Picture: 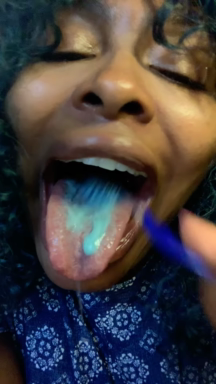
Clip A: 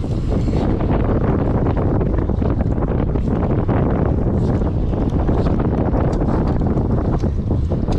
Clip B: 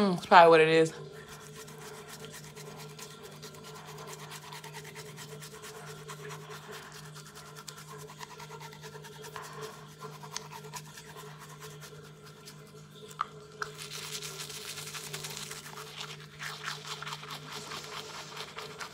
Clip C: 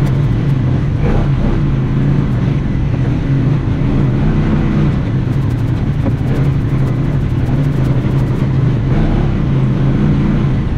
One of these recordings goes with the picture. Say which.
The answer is B